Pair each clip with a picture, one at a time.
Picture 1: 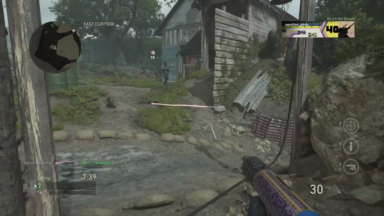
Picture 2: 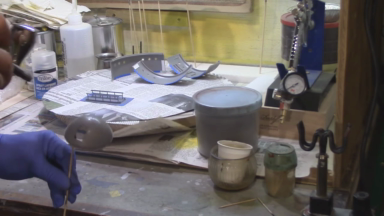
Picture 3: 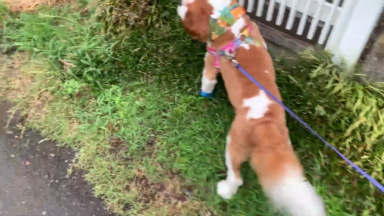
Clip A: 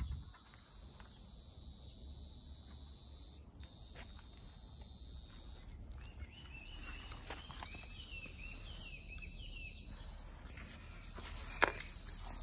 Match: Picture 3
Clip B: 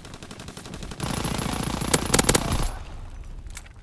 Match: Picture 1